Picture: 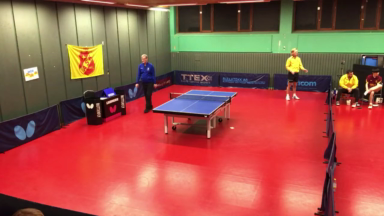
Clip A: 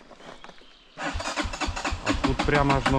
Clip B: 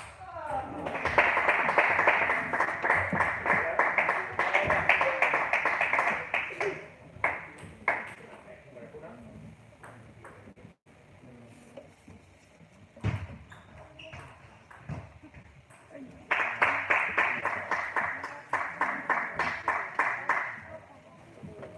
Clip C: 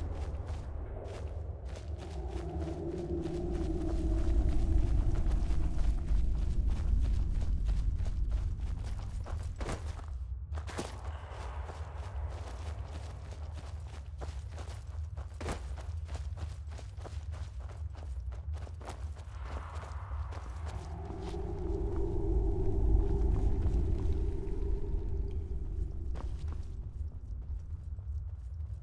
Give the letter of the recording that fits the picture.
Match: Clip B